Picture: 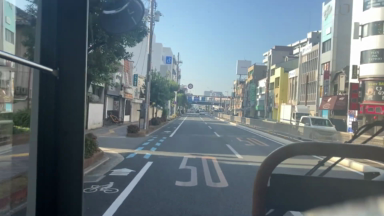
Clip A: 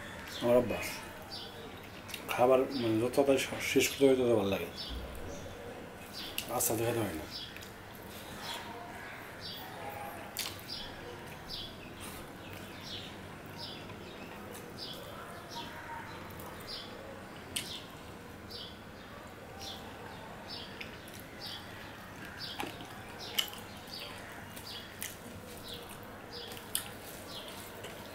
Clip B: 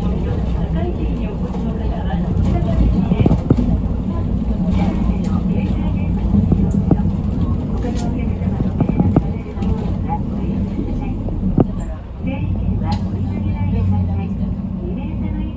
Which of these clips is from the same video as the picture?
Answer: B